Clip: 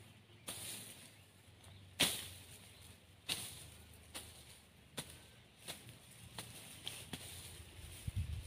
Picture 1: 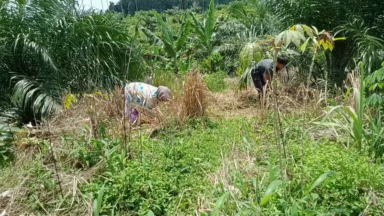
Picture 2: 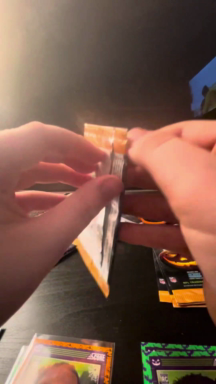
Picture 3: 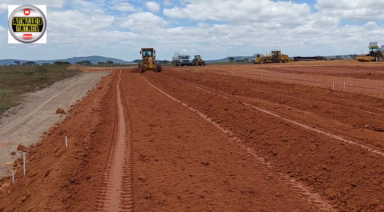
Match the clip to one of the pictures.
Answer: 1